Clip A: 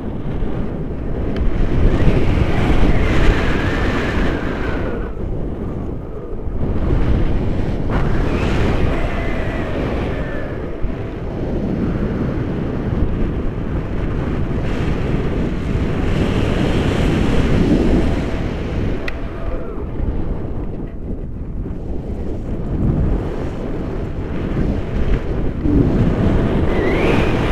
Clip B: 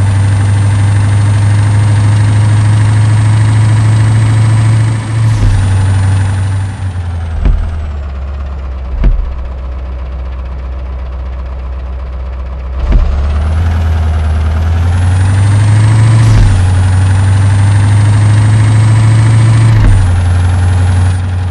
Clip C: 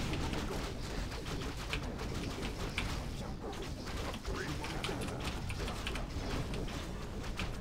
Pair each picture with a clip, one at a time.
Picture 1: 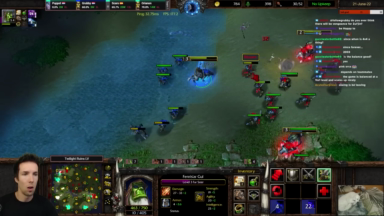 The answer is C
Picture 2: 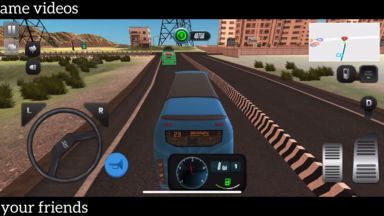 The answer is B